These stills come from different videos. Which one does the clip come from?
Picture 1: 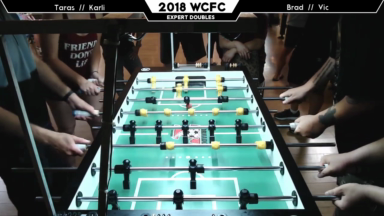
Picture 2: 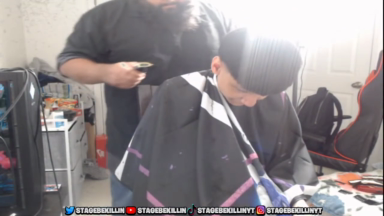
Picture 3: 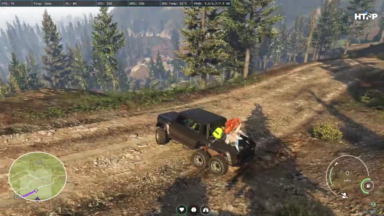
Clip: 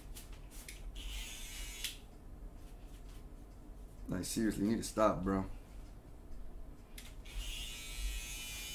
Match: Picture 2